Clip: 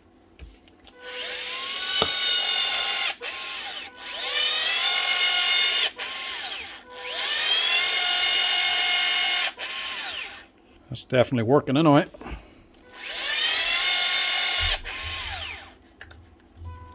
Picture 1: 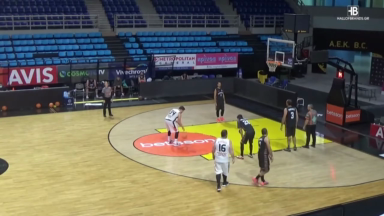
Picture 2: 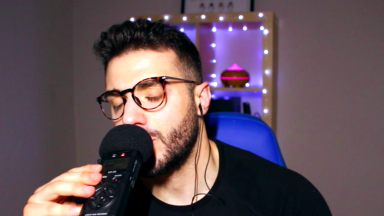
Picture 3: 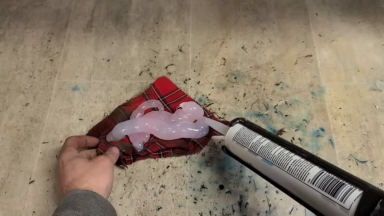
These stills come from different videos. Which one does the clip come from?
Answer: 3